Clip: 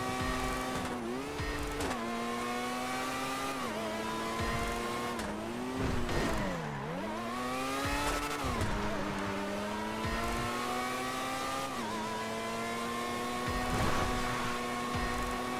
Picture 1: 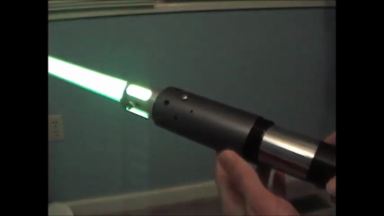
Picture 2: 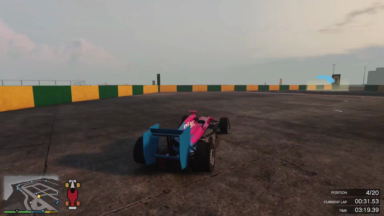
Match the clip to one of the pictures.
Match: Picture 2